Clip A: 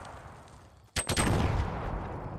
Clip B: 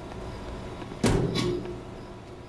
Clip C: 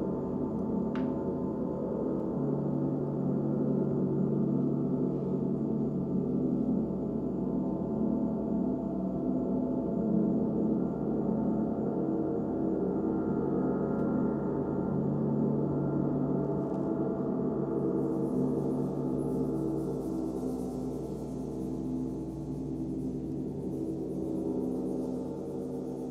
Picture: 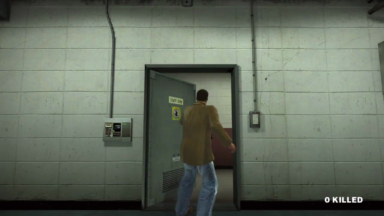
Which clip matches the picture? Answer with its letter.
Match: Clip B